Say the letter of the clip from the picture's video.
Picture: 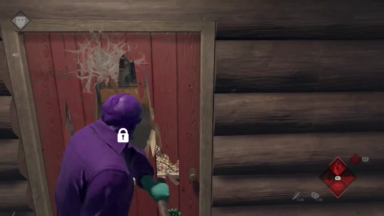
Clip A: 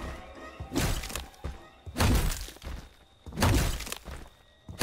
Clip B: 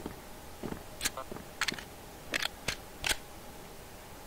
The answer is A